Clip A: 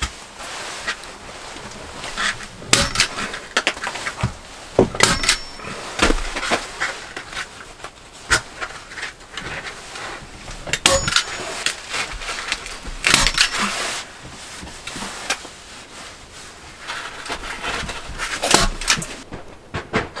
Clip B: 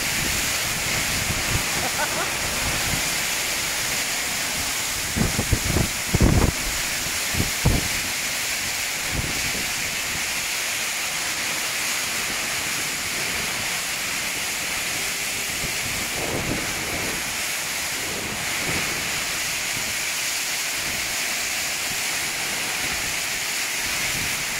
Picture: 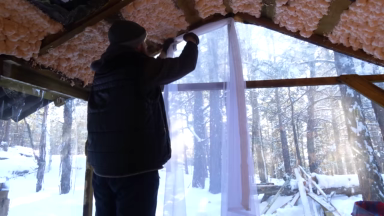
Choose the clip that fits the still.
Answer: A